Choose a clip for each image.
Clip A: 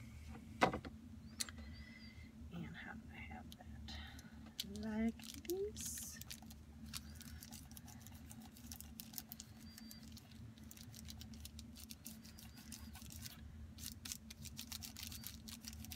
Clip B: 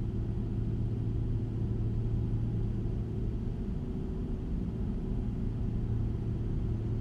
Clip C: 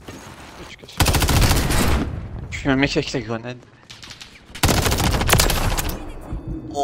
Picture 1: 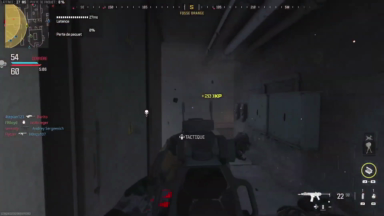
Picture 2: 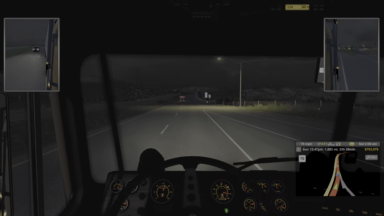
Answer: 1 C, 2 B